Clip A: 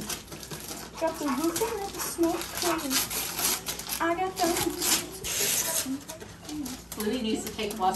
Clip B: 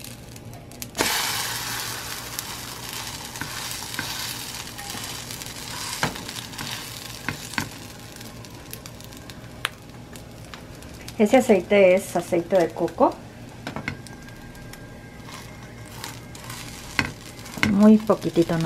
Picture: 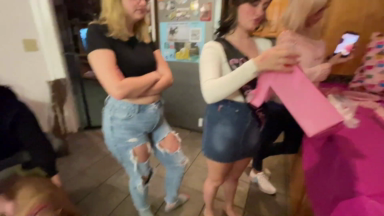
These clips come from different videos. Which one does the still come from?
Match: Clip A